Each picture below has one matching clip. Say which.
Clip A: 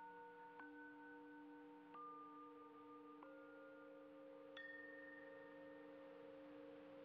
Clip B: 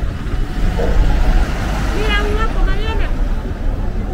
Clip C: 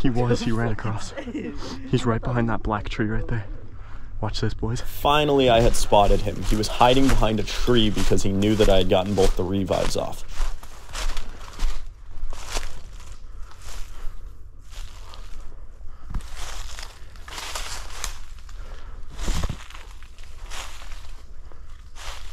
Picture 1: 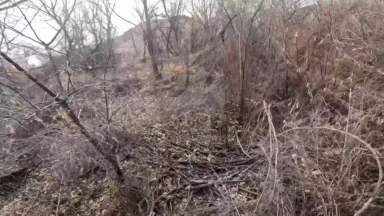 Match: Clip C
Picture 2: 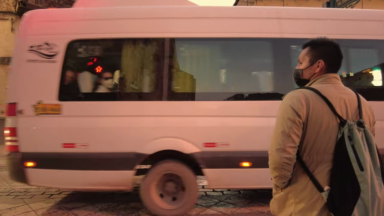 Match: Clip B